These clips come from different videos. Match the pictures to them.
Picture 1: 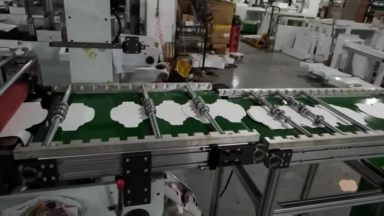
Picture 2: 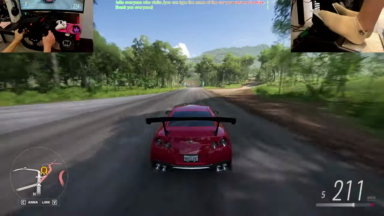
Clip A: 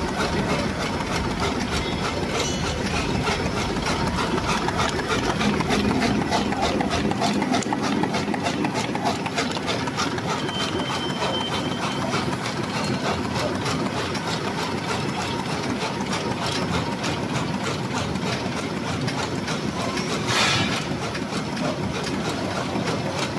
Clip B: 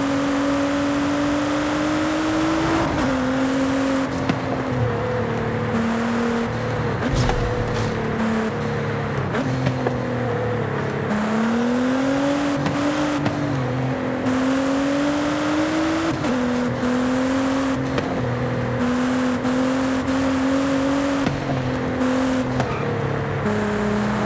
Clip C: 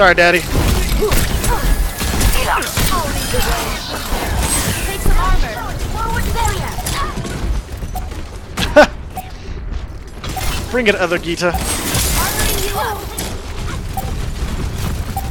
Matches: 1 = A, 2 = B